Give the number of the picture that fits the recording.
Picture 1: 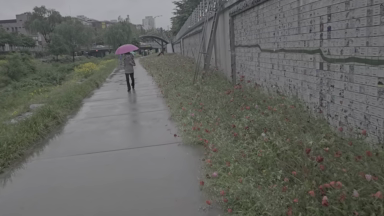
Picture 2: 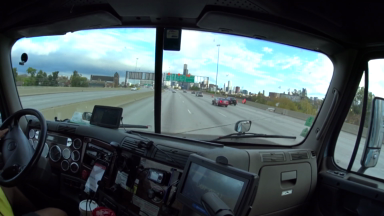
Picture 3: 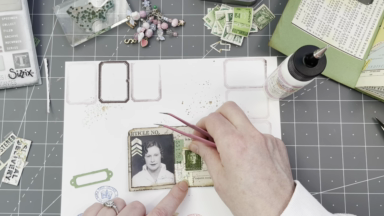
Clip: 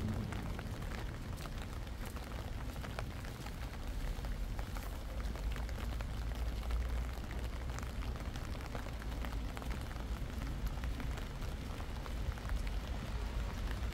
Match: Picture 1